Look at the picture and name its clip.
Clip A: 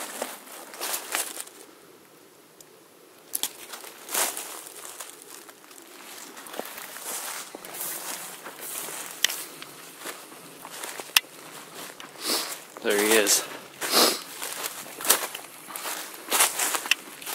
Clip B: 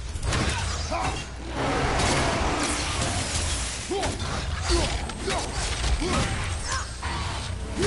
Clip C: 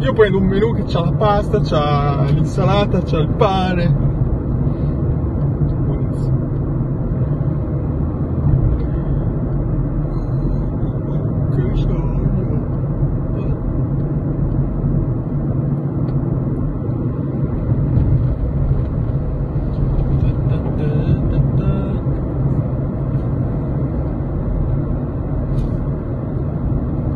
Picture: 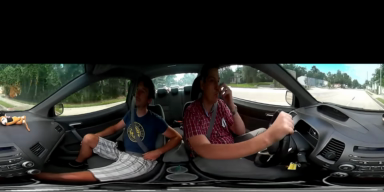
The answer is C